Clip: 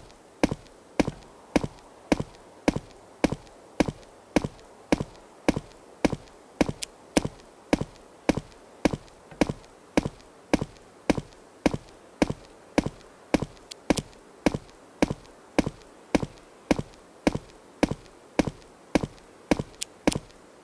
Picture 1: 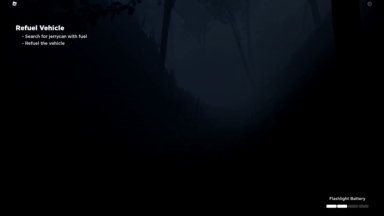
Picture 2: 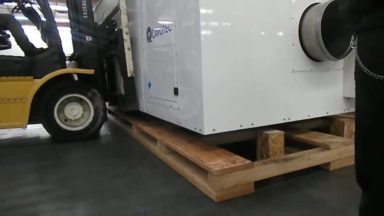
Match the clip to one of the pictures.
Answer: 1